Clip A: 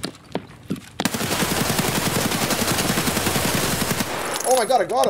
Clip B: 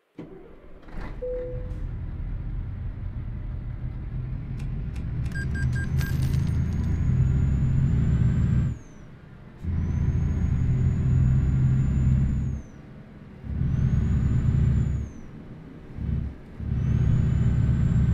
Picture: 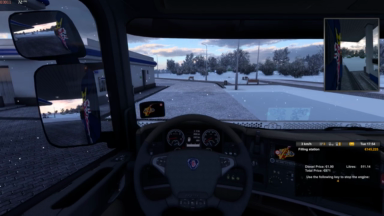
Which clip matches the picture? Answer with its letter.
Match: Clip B